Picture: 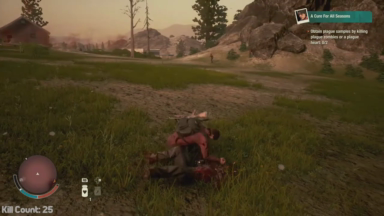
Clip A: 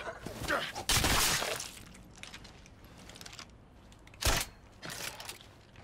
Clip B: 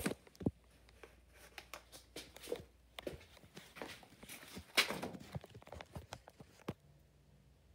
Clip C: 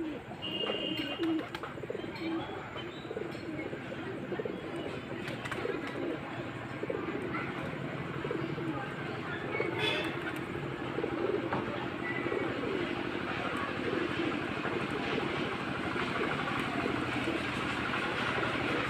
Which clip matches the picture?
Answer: A